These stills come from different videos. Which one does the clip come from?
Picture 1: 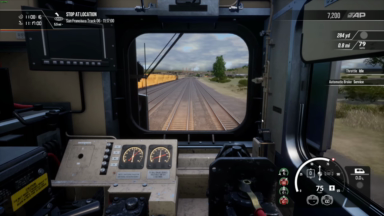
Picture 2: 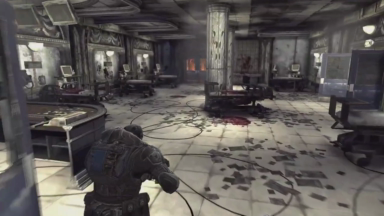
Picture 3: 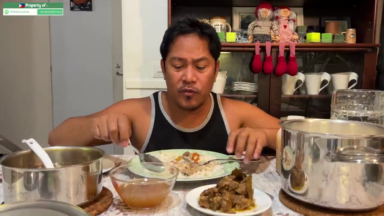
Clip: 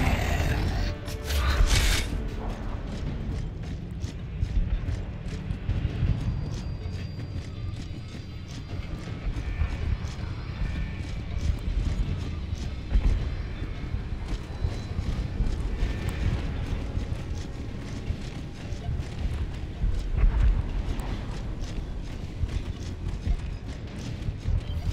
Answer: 2